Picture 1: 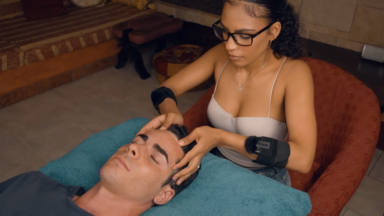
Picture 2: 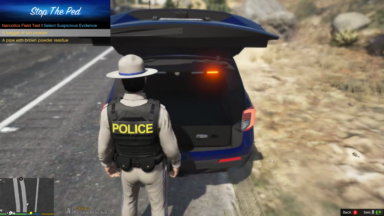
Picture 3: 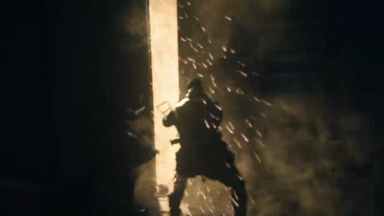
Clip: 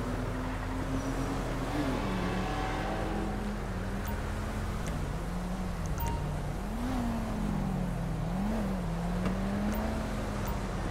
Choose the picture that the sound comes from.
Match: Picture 2